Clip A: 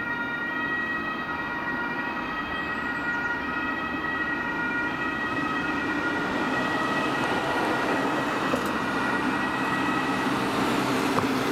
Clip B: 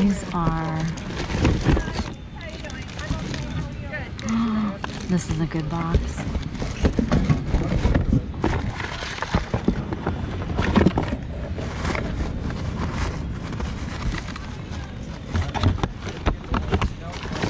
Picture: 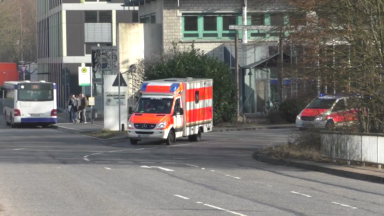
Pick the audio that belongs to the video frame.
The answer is A